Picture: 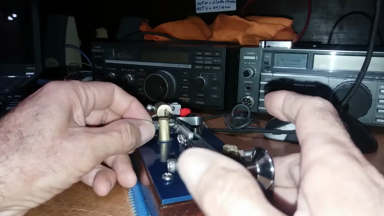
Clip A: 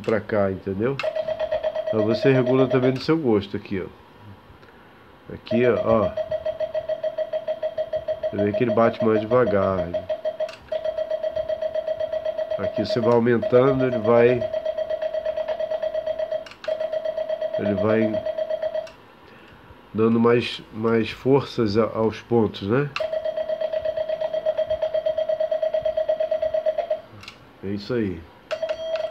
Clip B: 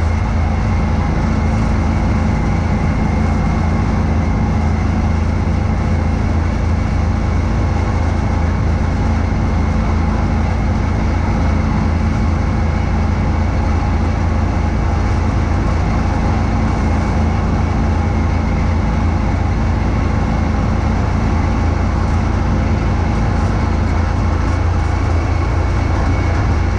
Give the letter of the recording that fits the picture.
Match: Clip A